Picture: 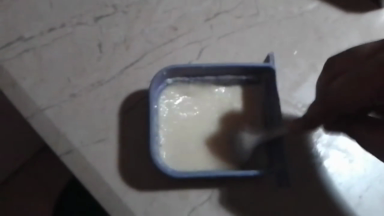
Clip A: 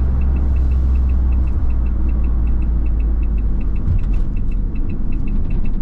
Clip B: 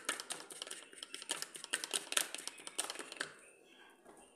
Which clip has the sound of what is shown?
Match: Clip B